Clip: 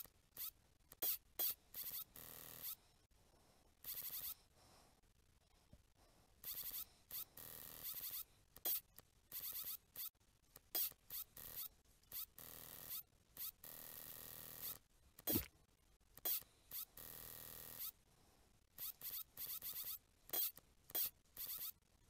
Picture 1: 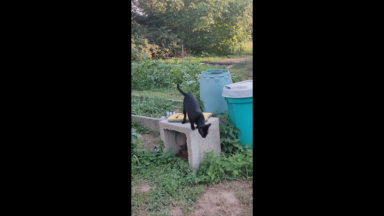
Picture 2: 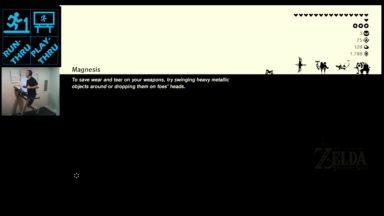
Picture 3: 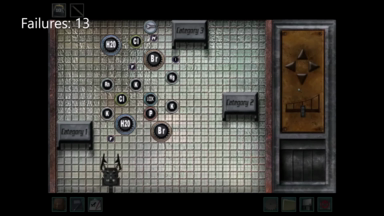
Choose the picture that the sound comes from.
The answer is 3